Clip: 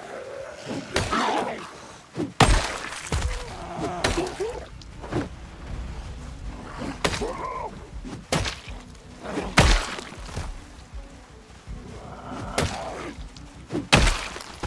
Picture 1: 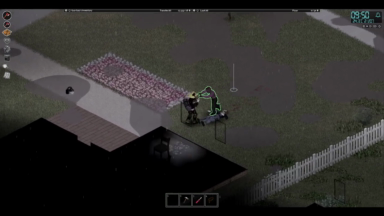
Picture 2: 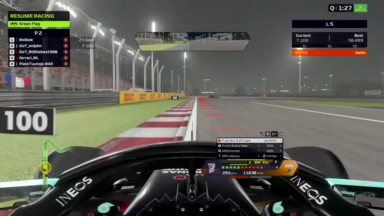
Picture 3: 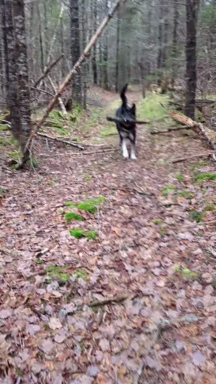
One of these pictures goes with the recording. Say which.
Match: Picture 1